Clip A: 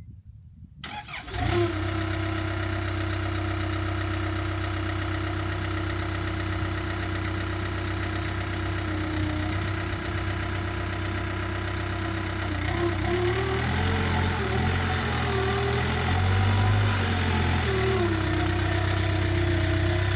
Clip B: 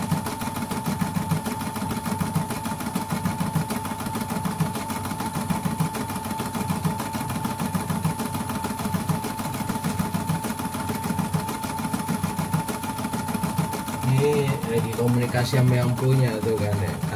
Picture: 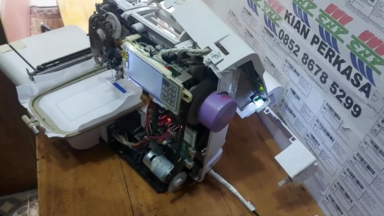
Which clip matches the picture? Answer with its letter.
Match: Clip B